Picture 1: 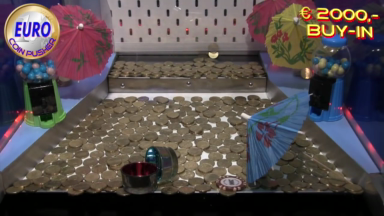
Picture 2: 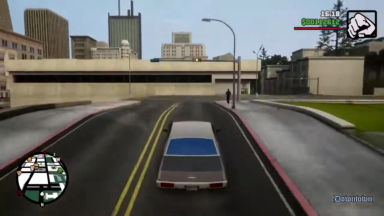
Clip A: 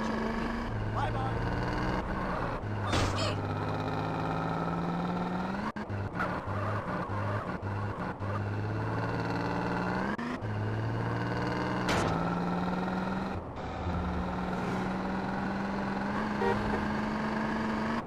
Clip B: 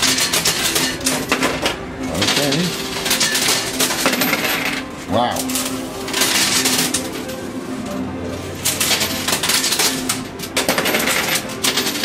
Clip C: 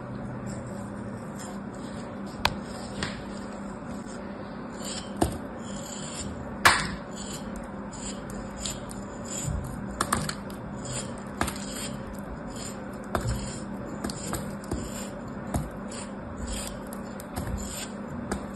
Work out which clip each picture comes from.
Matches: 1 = B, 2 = A